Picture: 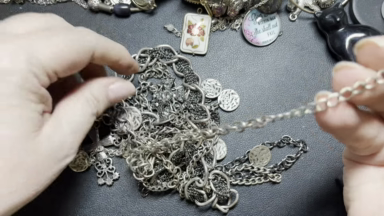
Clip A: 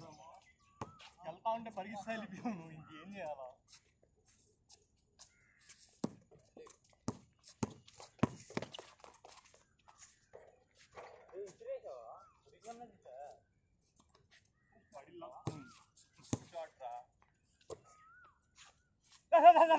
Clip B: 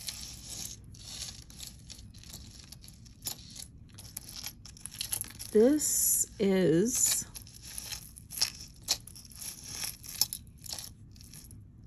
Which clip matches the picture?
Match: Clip B